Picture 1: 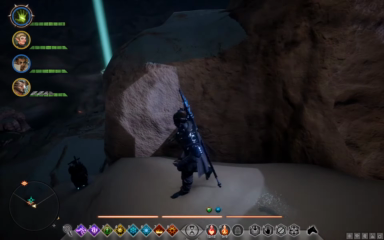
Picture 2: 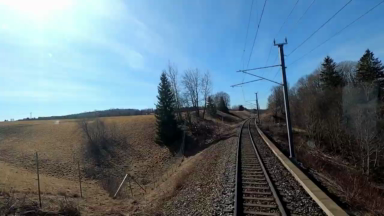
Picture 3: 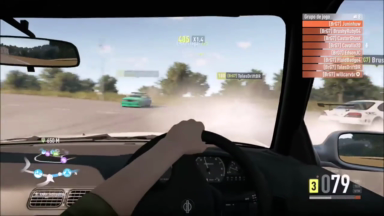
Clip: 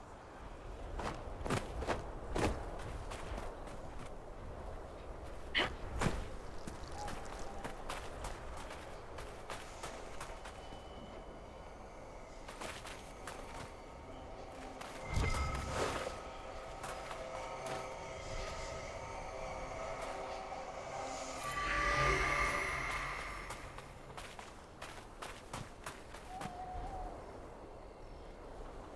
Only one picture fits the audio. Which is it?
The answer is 1